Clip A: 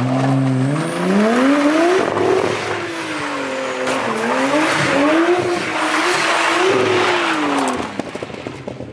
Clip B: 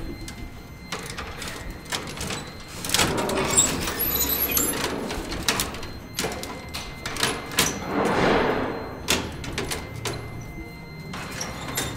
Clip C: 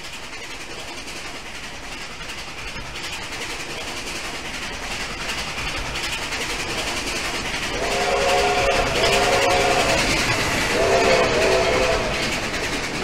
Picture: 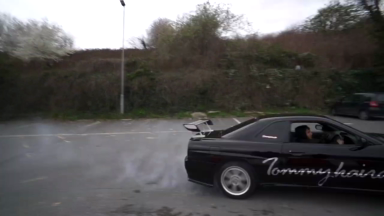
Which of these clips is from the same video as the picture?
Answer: A